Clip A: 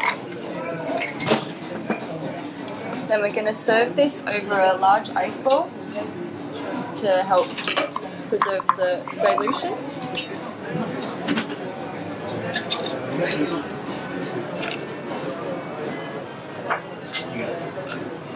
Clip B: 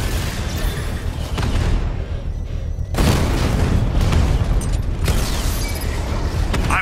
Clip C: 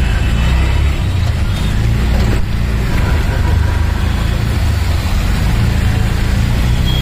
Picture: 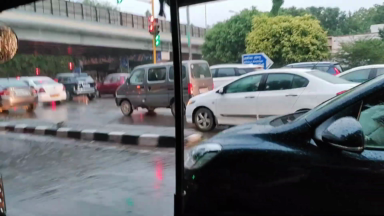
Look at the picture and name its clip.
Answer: C